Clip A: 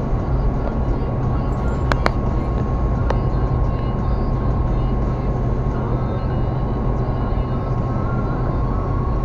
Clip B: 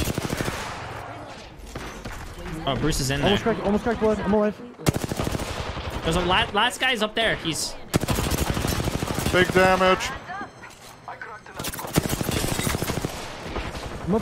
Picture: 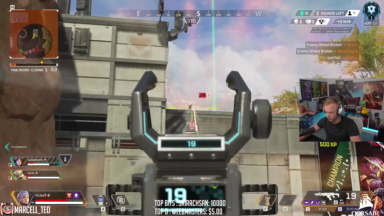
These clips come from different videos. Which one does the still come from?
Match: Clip B